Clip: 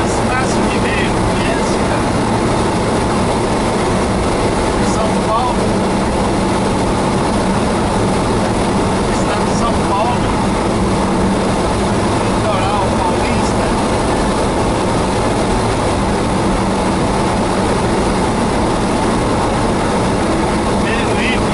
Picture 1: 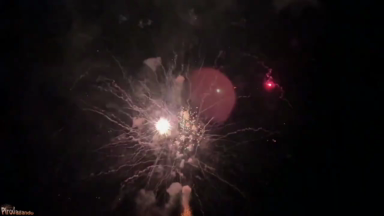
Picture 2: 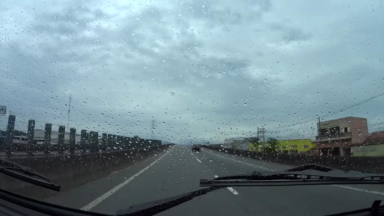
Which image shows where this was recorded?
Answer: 2